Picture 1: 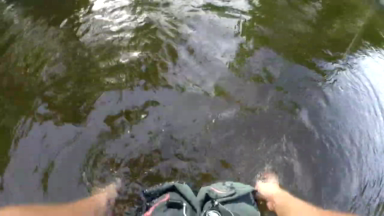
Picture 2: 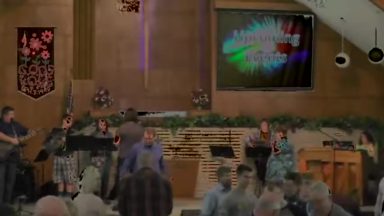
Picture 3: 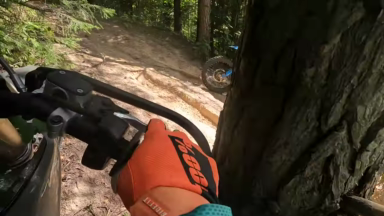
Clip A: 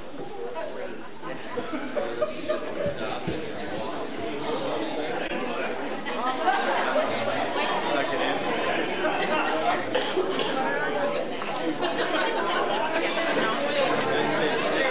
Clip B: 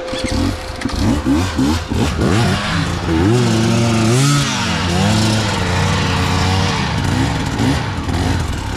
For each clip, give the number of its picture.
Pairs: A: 2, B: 3